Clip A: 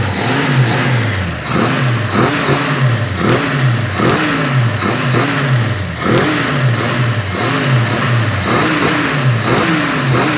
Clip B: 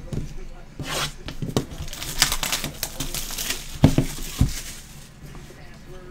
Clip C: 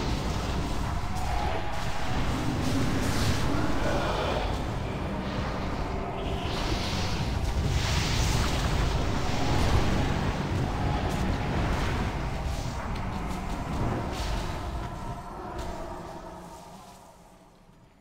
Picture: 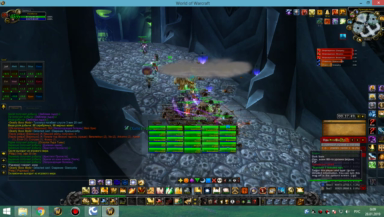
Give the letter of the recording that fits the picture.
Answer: C